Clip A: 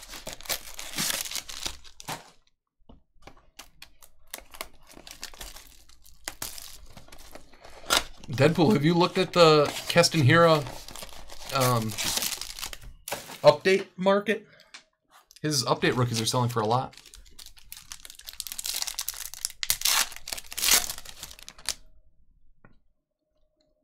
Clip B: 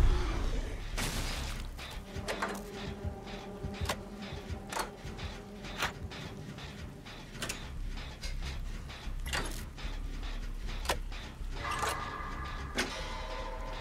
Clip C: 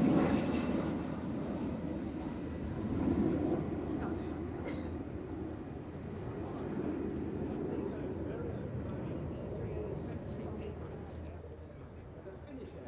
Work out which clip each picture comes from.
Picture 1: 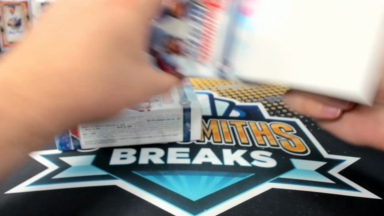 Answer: A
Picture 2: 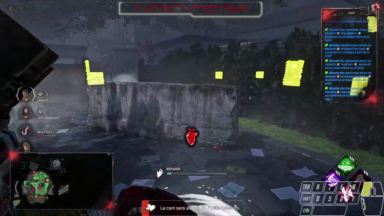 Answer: B